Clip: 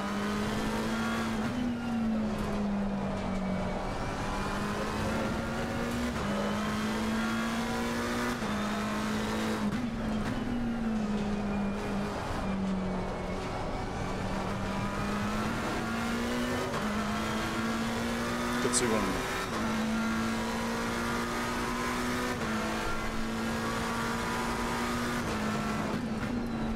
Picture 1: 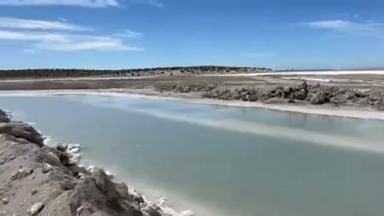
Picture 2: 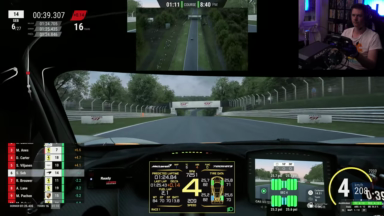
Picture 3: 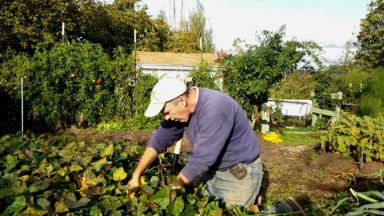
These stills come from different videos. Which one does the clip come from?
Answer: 2